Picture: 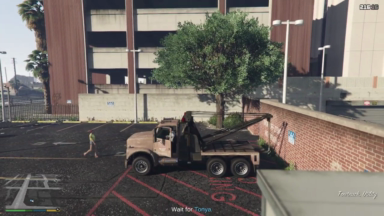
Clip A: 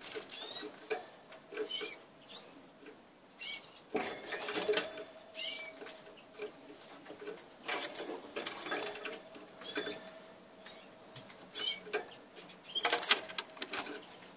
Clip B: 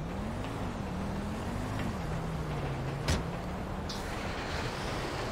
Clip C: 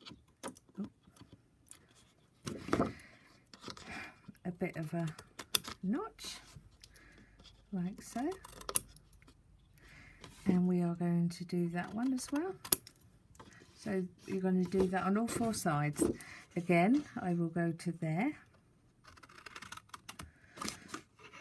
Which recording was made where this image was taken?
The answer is B